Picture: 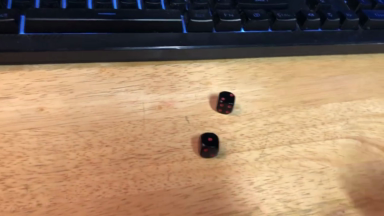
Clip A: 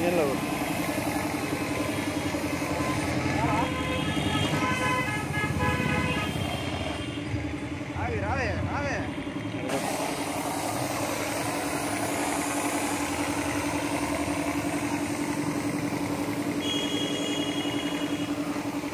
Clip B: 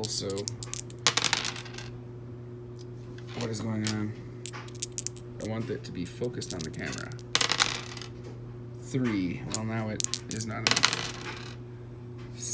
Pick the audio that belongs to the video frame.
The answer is B